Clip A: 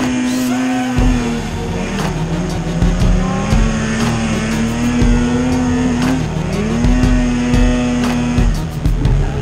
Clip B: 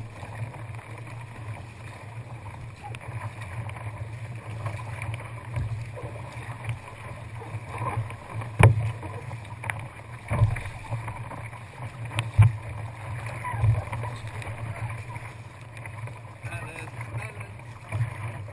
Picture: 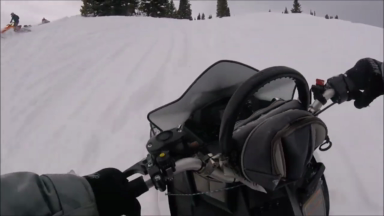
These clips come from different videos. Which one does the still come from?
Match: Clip A